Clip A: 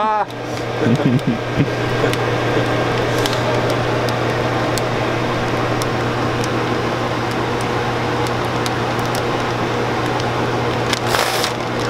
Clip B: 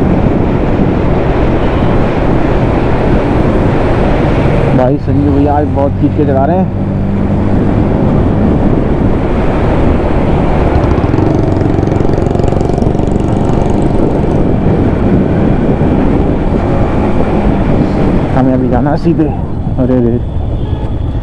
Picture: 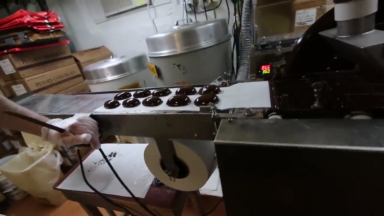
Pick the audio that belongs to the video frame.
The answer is A